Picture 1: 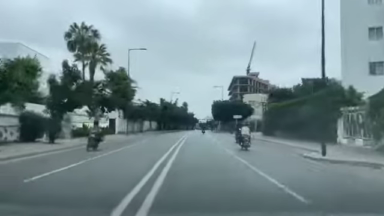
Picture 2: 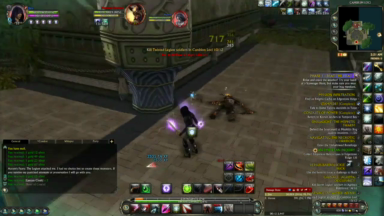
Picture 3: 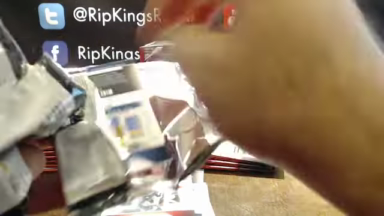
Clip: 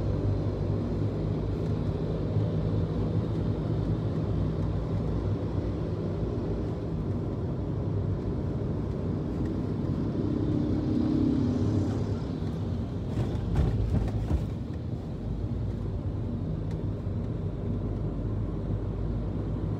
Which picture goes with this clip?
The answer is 1